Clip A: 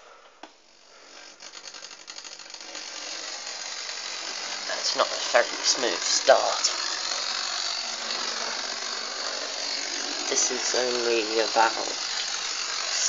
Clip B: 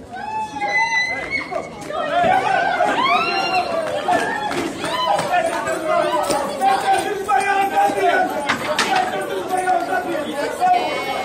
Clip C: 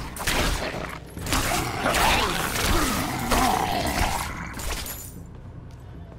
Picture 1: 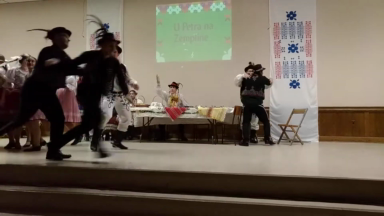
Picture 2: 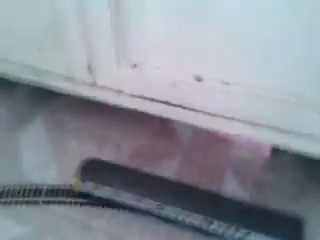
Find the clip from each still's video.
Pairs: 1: B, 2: A